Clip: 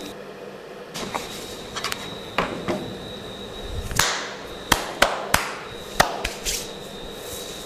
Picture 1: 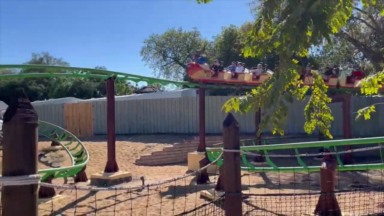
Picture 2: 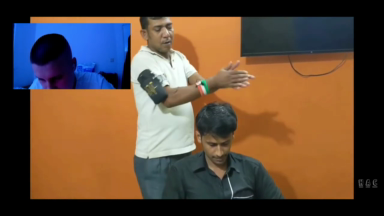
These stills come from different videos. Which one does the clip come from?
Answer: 2